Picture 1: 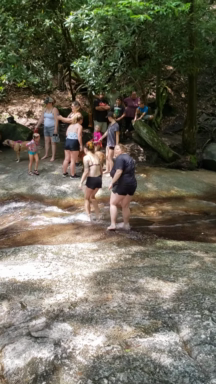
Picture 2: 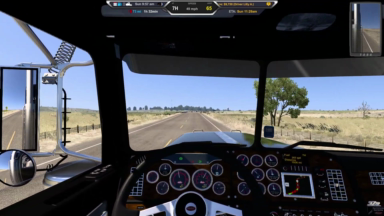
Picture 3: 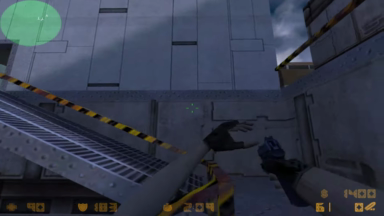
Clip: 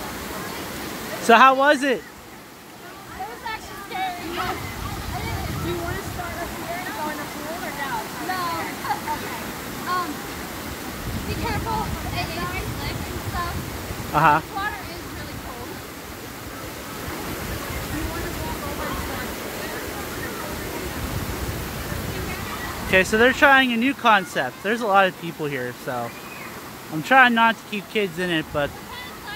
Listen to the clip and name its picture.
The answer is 1